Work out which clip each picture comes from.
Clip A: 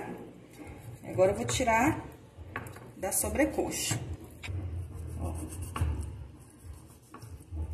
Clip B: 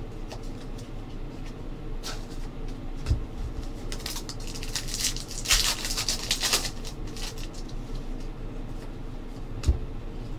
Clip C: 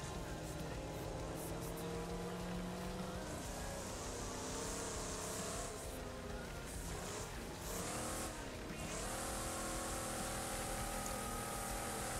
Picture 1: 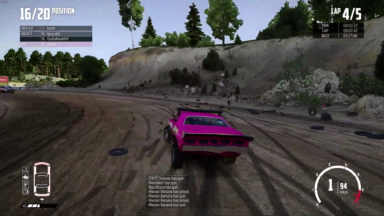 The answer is C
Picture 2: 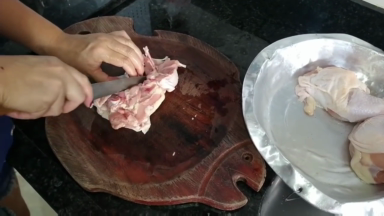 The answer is A